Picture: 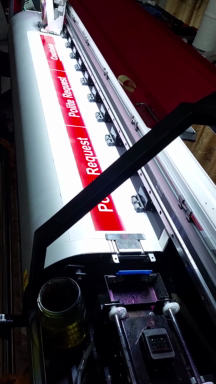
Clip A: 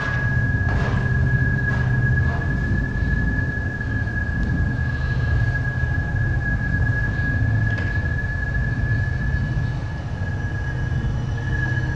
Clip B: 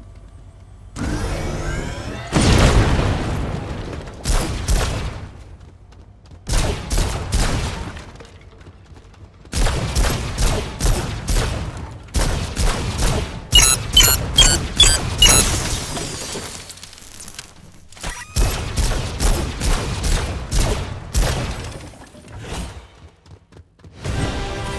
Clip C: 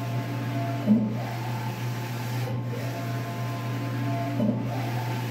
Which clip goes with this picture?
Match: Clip C